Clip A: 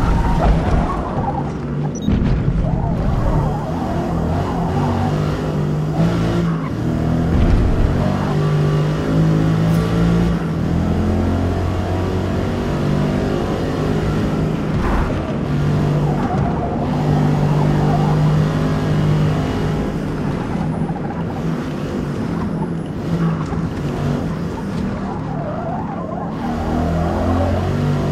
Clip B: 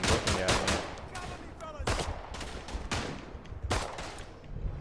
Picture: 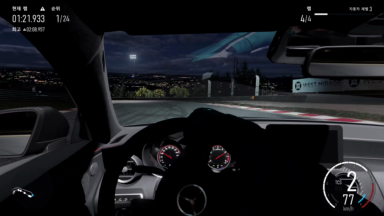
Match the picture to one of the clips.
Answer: A